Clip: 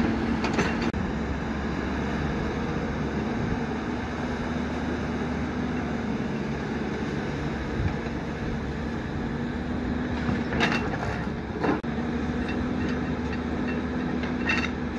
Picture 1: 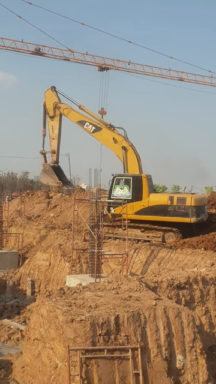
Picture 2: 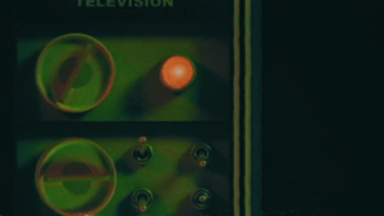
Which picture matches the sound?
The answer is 1